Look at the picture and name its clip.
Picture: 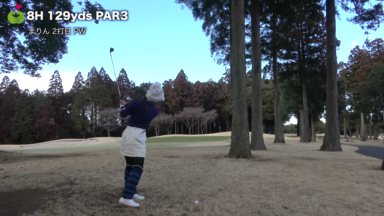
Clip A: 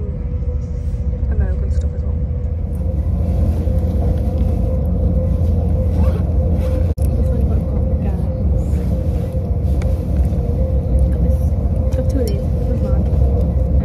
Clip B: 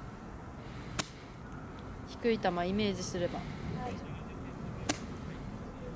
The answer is B